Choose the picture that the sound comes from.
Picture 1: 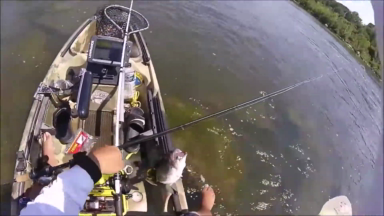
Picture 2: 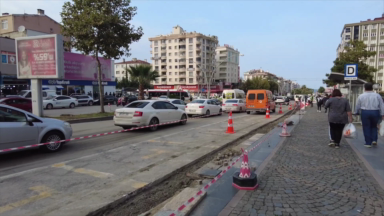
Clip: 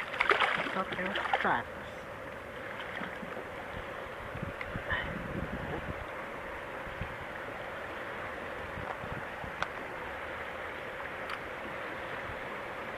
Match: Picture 1